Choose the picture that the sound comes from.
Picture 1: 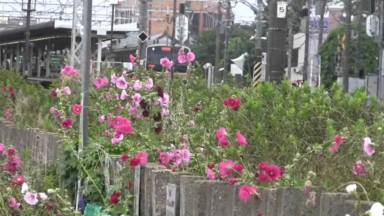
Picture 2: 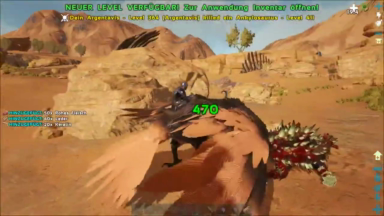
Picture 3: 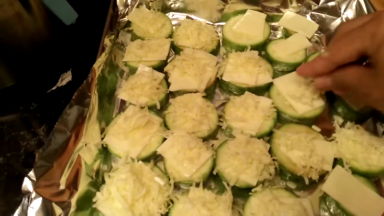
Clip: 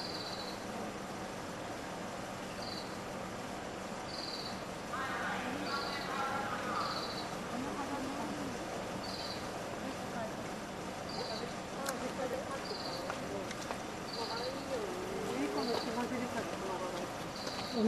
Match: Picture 1